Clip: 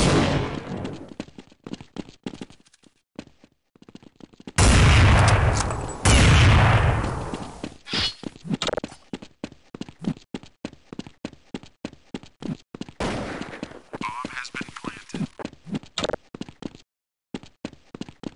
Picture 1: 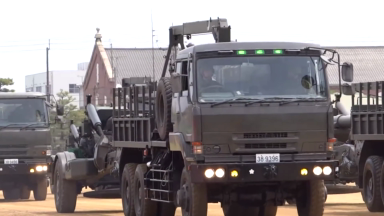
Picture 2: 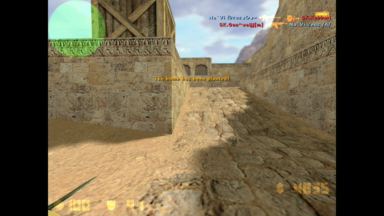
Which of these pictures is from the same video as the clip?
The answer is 2